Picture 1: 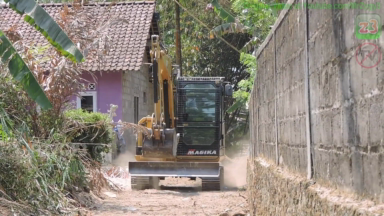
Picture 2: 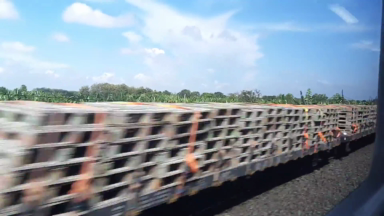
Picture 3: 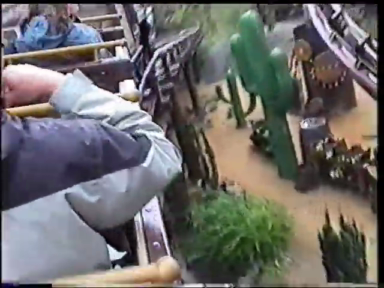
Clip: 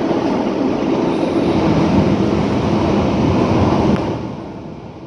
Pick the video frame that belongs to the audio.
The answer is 2